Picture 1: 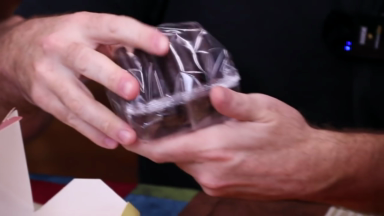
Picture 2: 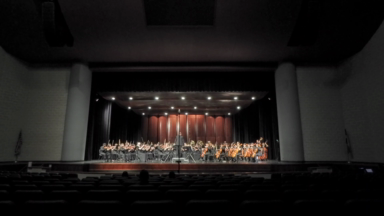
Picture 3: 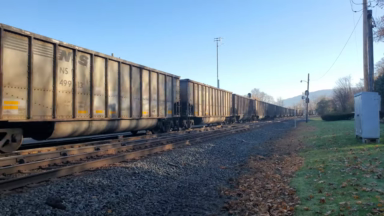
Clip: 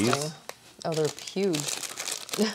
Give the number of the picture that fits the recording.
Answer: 1